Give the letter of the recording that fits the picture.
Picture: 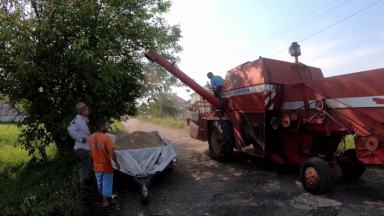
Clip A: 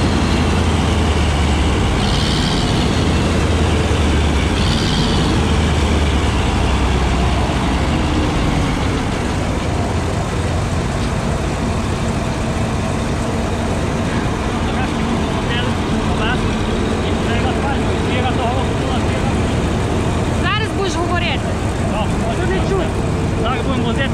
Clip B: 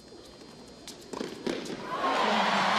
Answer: A